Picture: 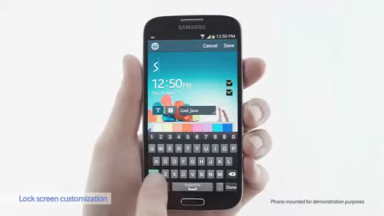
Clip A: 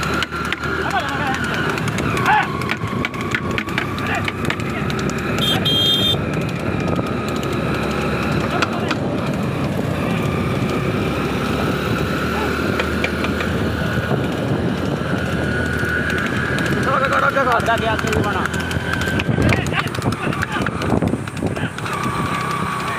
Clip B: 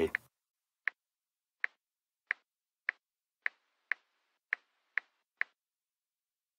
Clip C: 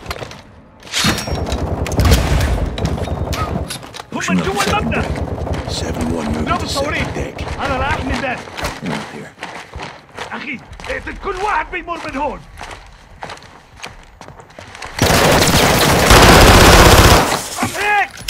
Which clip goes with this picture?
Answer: B